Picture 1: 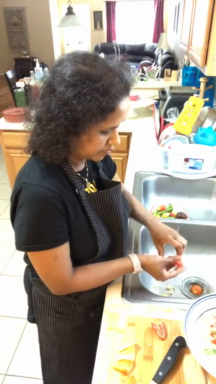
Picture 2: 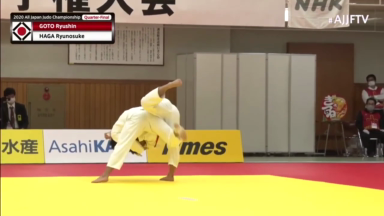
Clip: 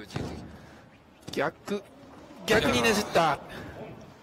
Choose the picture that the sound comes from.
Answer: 2